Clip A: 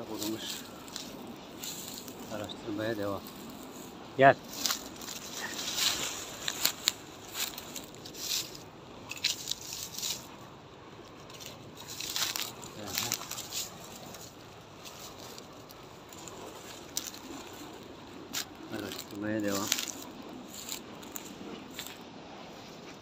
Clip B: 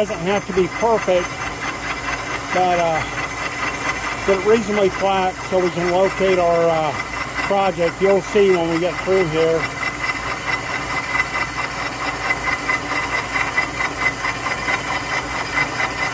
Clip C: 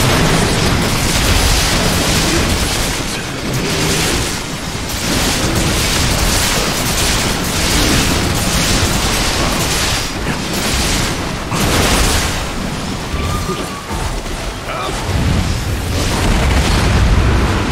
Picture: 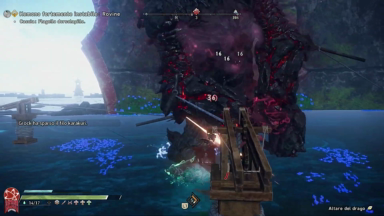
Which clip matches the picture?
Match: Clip C